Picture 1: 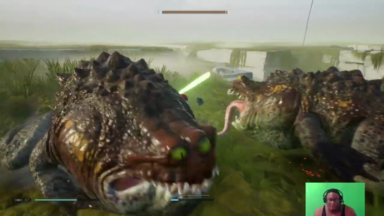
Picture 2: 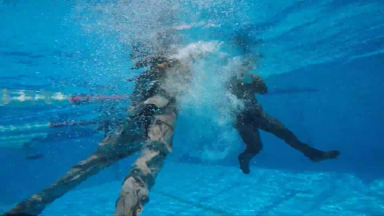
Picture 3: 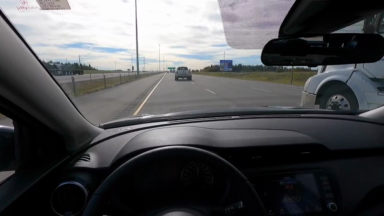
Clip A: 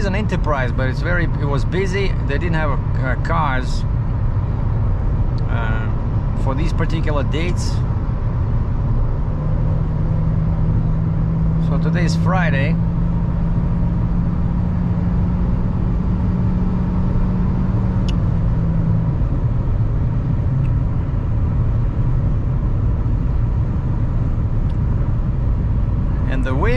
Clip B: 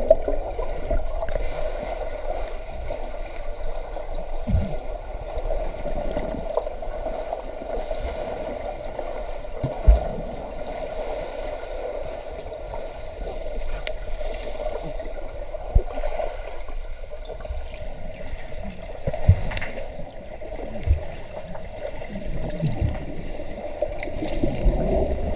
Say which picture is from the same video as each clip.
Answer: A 3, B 2